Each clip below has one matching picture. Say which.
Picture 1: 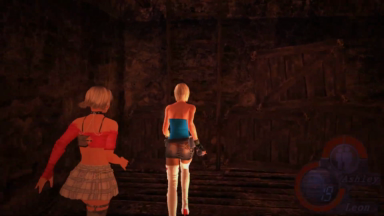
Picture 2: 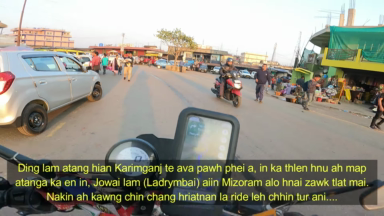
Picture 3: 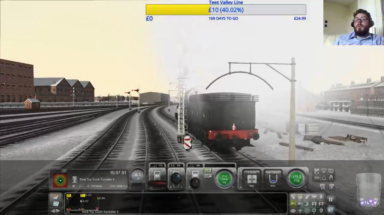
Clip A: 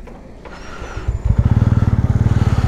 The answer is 2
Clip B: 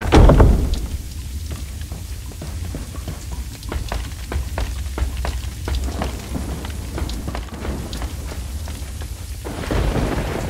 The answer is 1